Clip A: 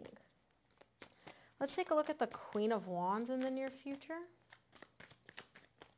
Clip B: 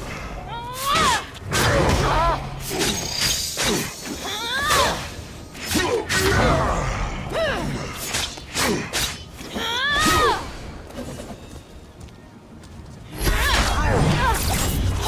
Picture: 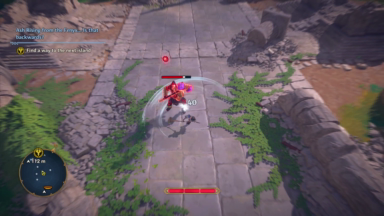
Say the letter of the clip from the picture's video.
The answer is B